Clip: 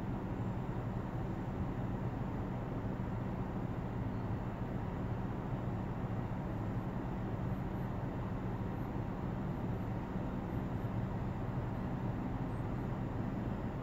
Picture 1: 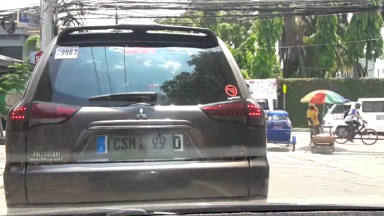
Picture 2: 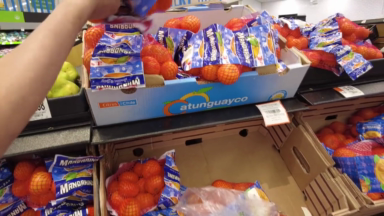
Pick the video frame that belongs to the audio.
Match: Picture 1